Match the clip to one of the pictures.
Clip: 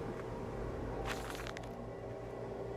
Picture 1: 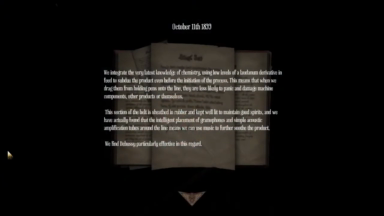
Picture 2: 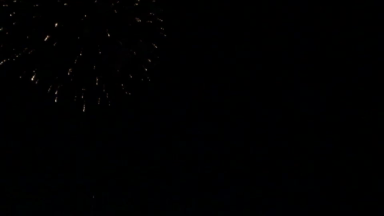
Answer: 1